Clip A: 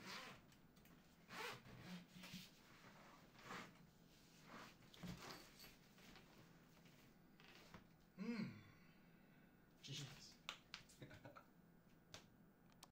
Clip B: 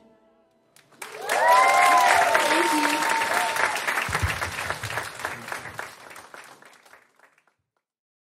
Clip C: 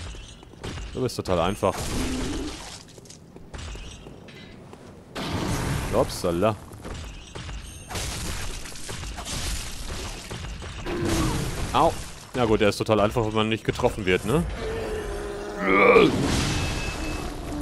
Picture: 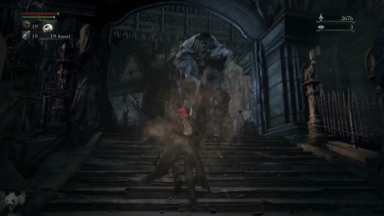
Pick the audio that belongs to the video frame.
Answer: C